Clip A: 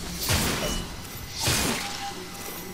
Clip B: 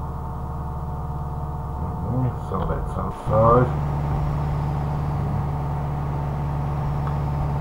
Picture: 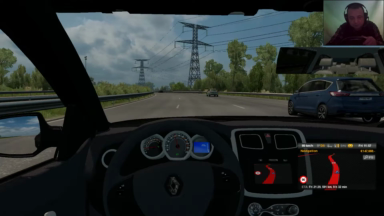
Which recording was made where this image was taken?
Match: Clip B